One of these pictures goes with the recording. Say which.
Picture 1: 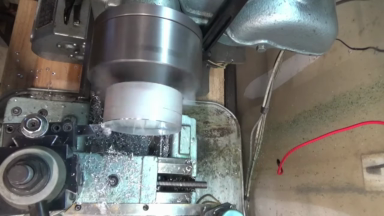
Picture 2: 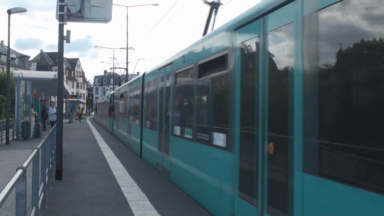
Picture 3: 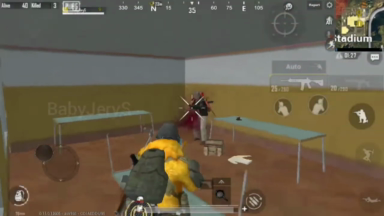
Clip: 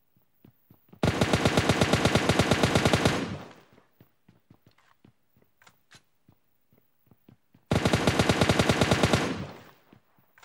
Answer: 3